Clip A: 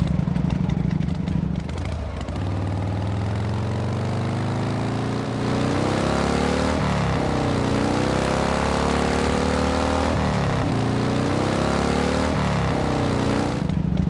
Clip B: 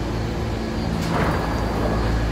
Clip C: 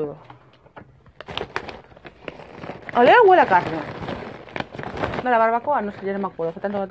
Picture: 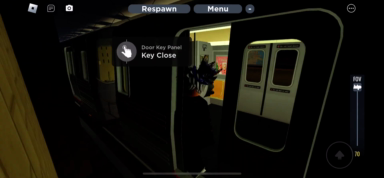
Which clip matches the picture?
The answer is B